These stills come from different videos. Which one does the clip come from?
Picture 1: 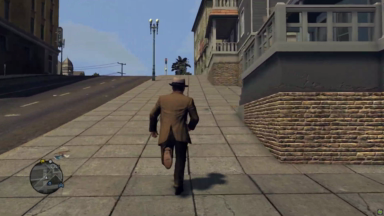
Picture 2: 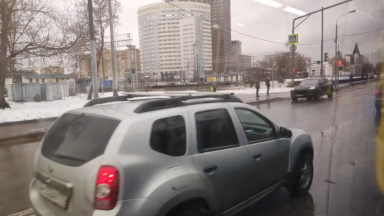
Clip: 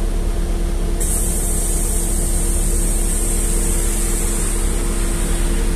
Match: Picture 2